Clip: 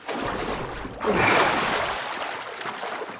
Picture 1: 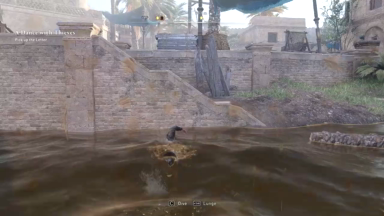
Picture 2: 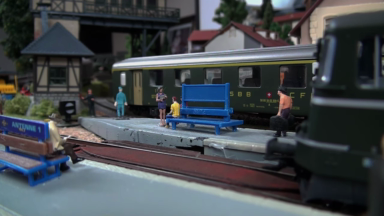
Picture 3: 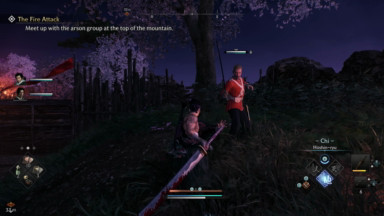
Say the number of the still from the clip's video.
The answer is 1